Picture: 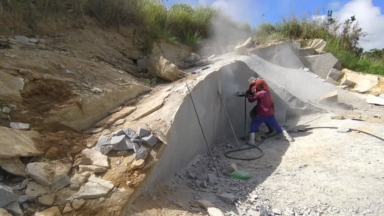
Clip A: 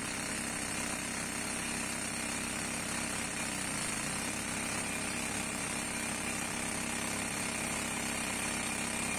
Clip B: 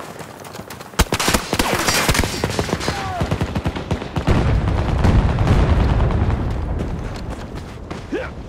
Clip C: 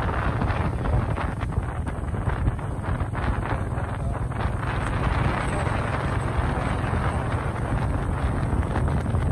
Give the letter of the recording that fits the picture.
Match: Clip A